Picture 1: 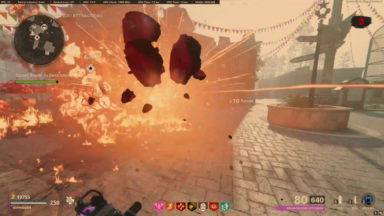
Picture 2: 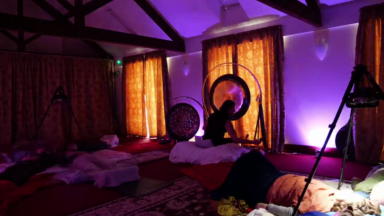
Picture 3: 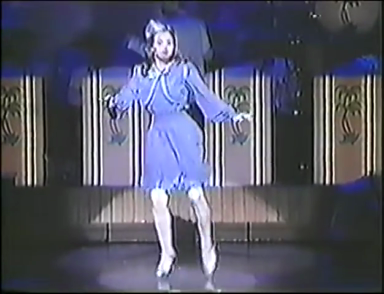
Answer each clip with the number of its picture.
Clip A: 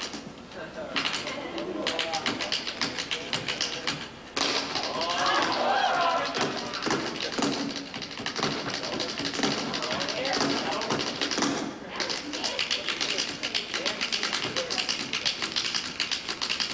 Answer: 3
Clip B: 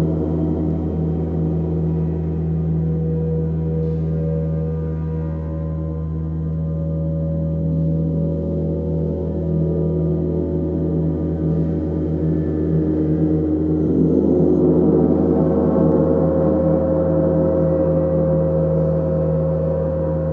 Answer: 2